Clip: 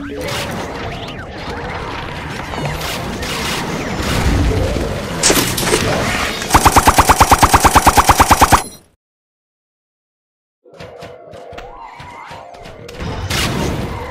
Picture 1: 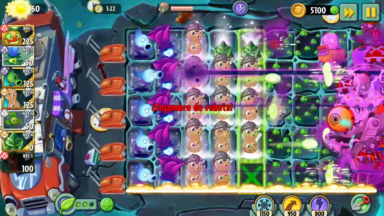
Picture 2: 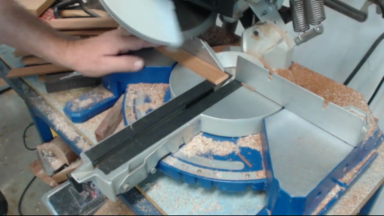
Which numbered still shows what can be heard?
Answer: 1